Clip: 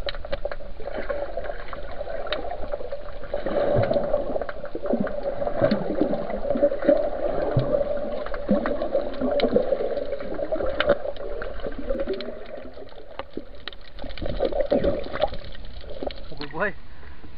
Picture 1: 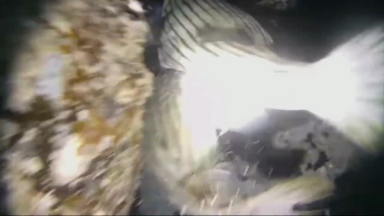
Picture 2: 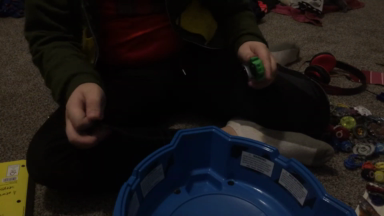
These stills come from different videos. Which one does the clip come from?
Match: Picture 1